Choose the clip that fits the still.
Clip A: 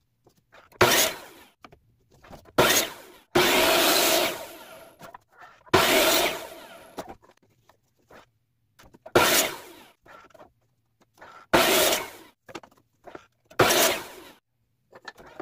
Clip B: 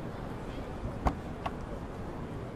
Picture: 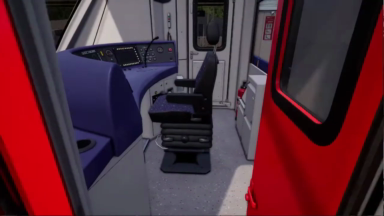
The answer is B